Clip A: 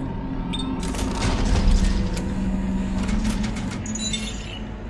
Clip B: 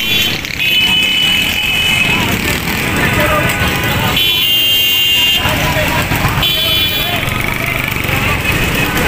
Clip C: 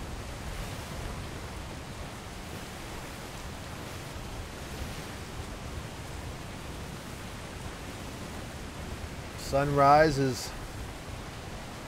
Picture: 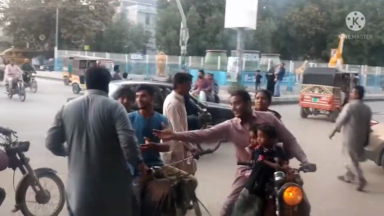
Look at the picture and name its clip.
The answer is B